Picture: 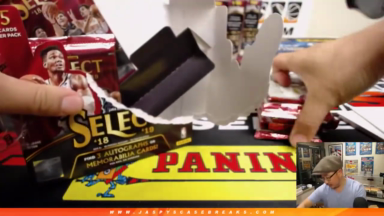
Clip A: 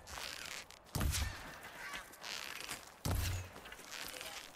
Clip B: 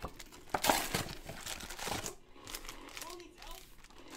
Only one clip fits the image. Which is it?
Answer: B